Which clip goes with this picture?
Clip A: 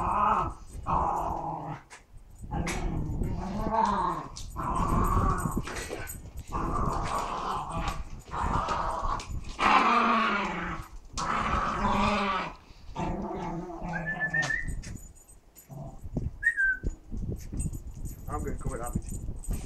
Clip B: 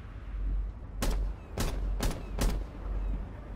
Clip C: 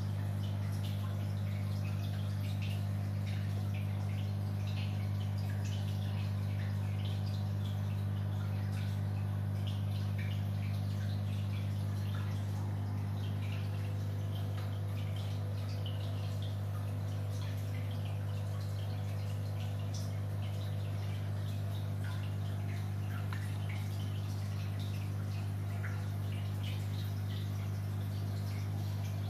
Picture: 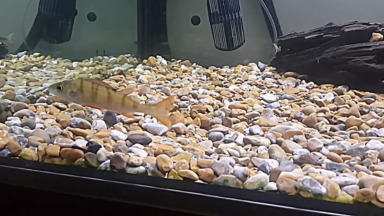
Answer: C